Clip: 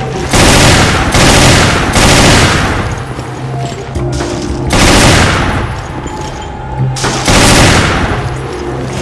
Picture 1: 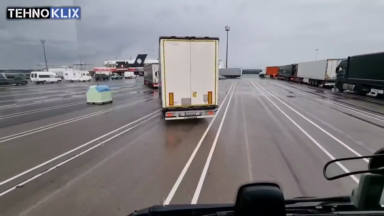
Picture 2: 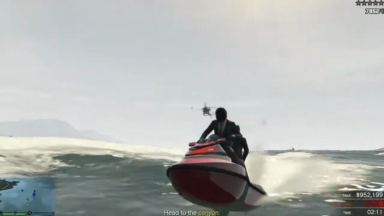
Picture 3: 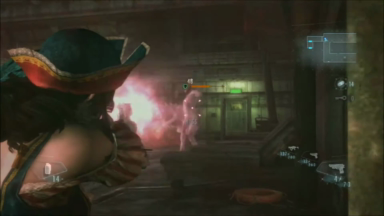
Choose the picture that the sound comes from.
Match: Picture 3